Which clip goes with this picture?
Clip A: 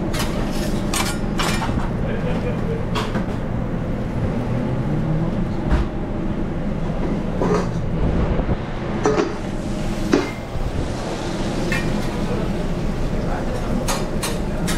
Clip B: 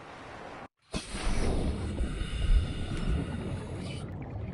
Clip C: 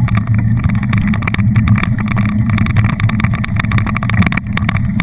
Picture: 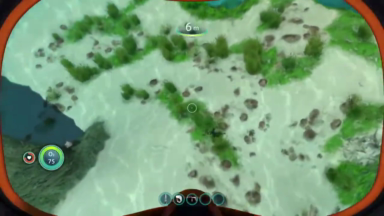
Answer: B